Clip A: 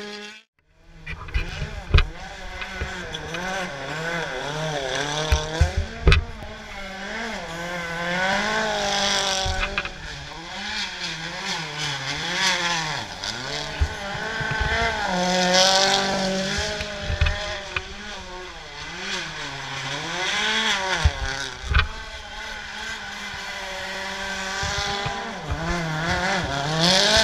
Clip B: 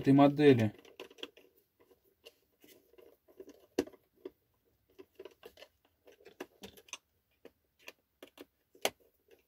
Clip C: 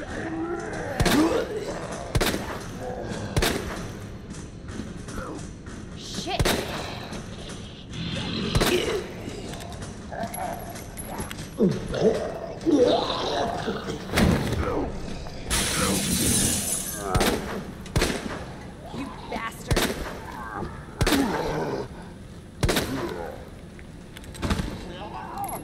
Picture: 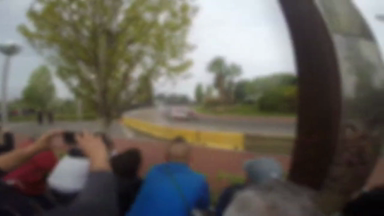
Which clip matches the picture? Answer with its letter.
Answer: A